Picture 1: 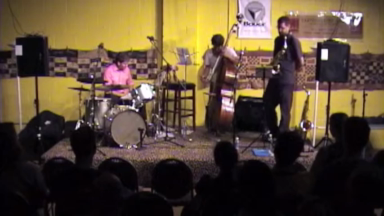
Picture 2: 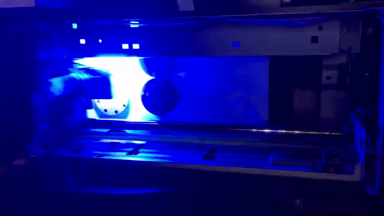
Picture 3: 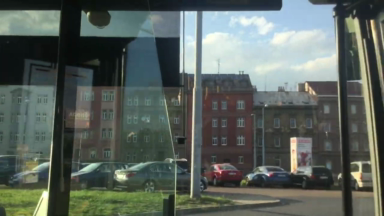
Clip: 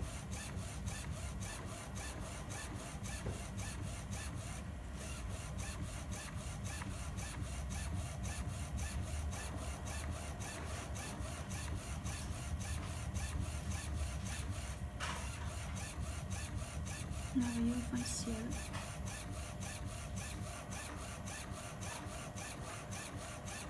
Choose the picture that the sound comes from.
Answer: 2